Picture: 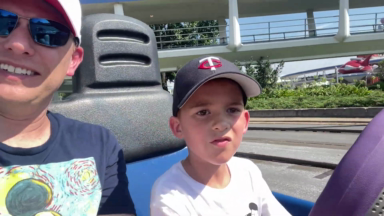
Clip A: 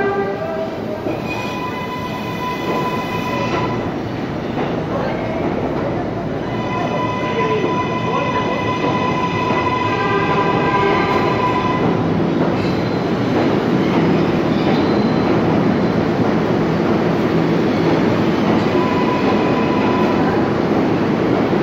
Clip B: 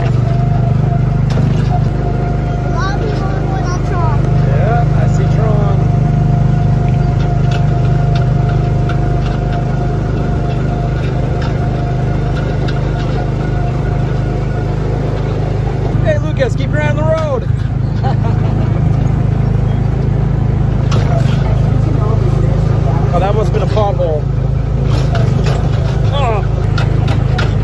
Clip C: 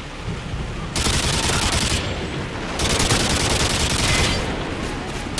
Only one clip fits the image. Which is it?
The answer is B